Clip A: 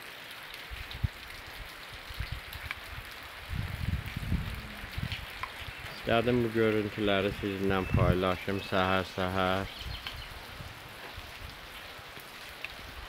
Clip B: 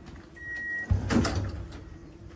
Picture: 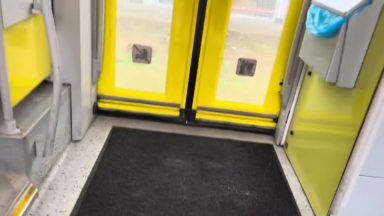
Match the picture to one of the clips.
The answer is B